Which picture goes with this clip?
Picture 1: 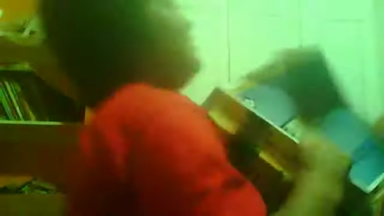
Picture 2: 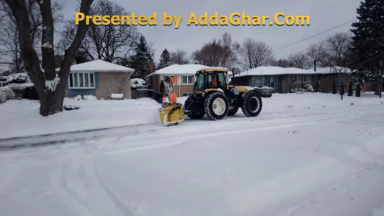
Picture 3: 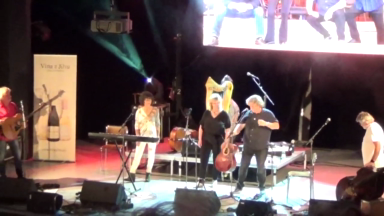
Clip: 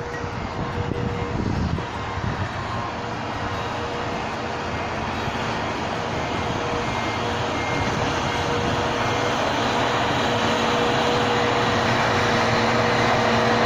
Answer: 2